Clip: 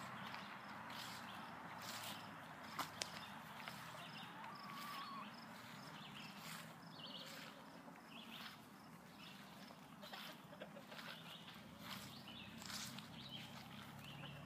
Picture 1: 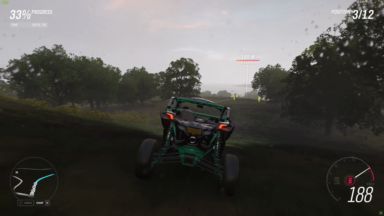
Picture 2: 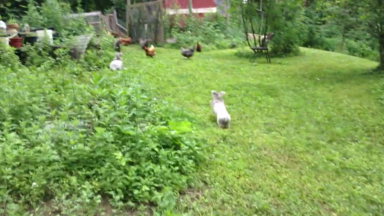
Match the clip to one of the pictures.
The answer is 2